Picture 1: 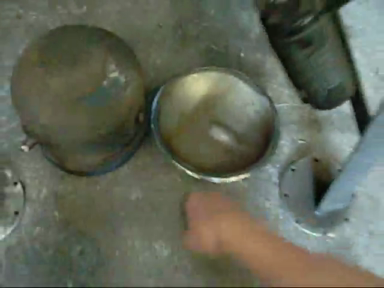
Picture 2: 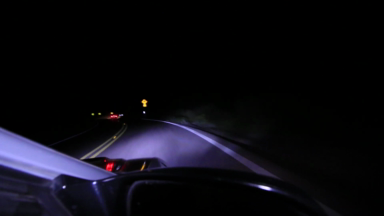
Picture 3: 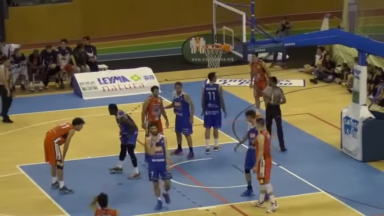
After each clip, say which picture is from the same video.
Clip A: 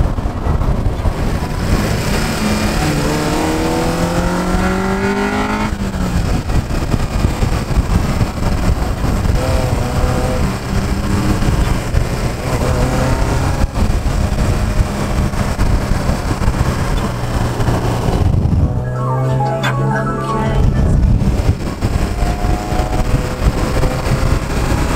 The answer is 2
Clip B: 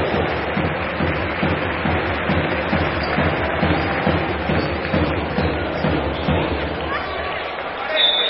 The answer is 3